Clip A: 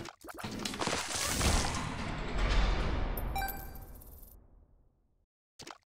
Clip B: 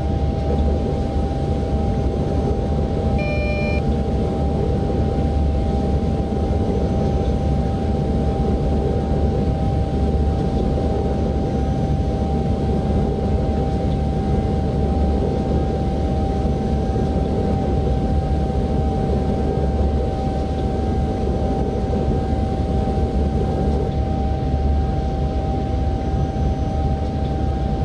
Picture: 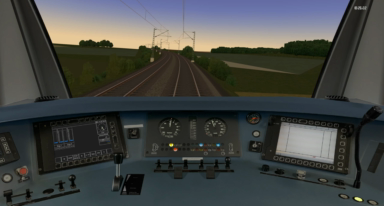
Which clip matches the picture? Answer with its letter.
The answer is B